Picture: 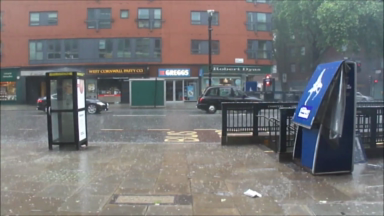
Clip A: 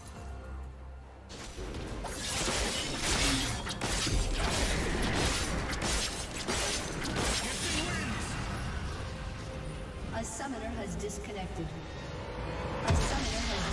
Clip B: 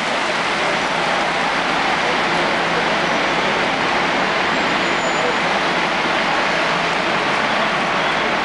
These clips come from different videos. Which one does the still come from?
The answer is B